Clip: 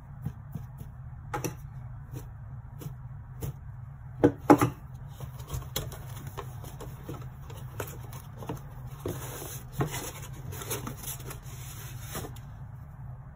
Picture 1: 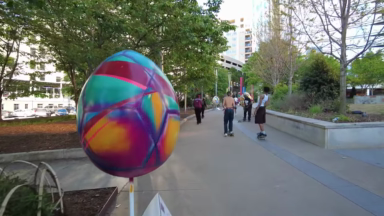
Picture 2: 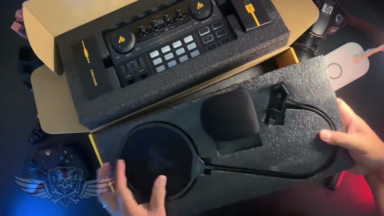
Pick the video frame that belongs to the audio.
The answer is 2